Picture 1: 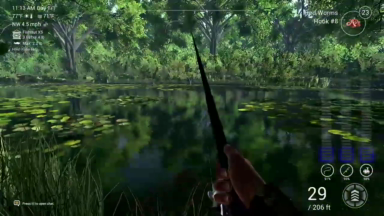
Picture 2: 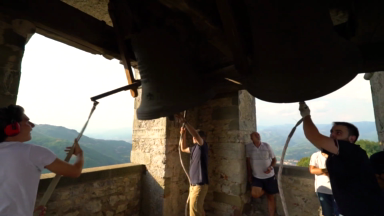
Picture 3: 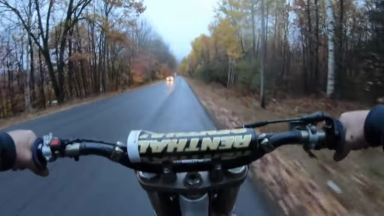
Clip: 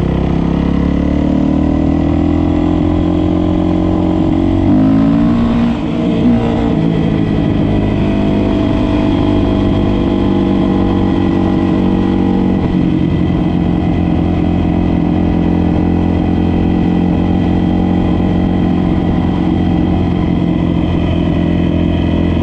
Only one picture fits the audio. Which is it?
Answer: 3